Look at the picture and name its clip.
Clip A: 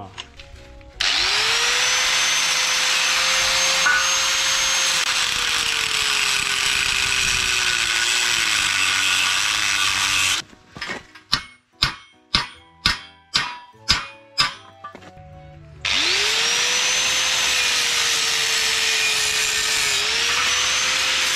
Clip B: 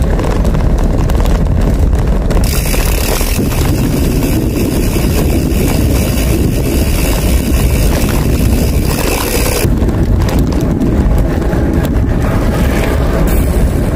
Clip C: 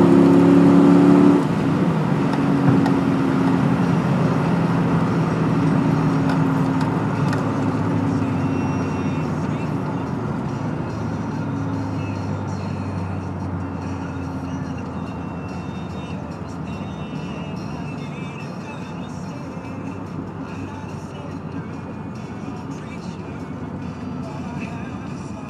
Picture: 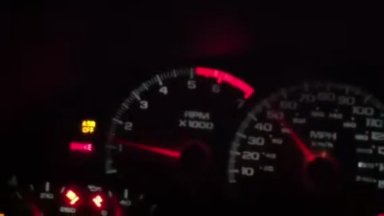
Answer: C